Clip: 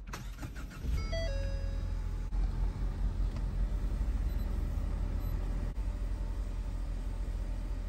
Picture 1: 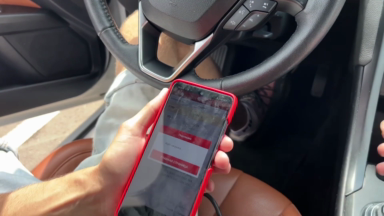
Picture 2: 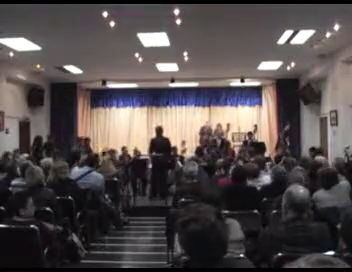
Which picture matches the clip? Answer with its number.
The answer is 1